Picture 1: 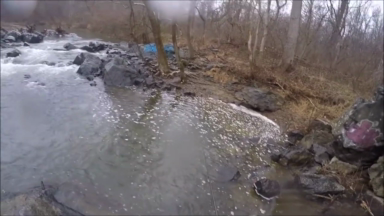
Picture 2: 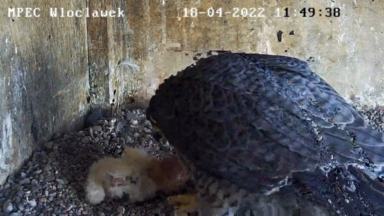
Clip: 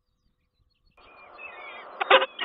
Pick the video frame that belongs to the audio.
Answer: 2